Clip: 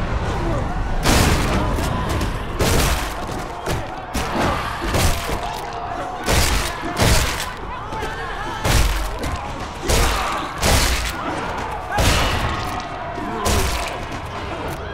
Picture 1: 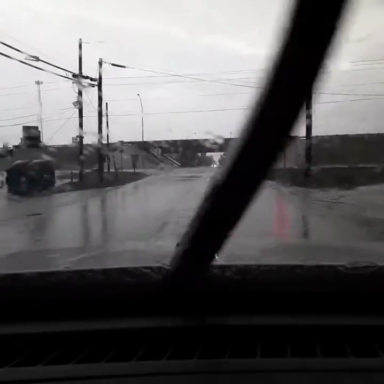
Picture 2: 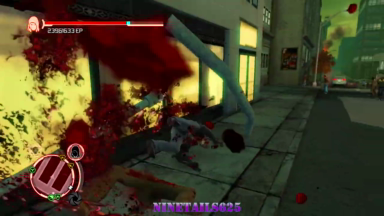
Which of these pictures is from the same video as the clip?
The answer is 2